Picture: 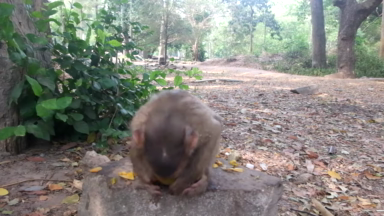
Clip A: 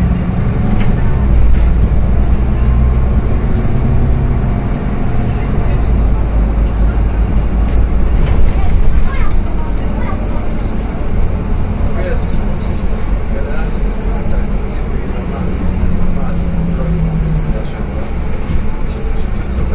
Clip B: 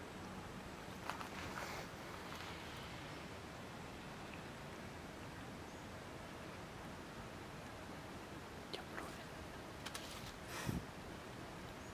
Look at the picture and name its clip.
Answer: B